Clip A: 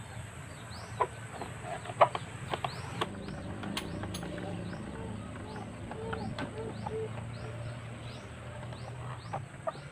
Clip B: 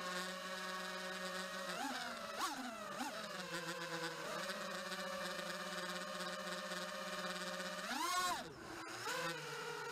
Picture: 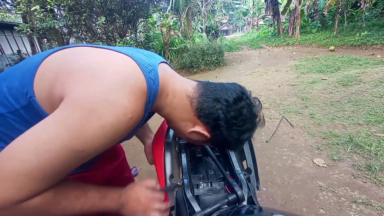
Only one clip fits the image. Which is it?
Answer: A